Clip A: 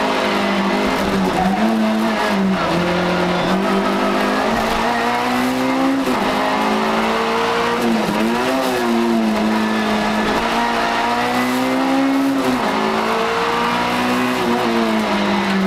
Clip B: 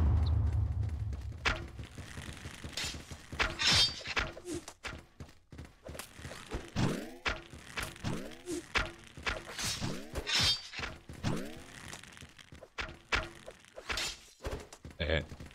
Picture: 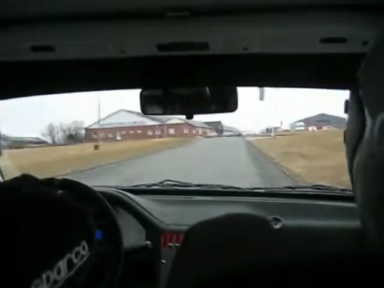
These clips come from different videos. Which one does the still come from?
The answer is A